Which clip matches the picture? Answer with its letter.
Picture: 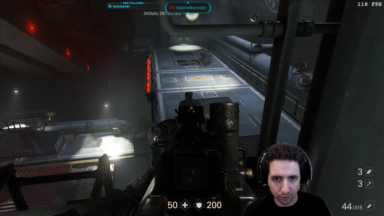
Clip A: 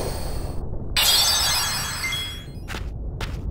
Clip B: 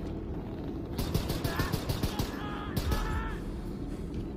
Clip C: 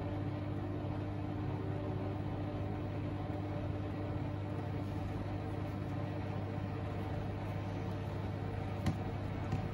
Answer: B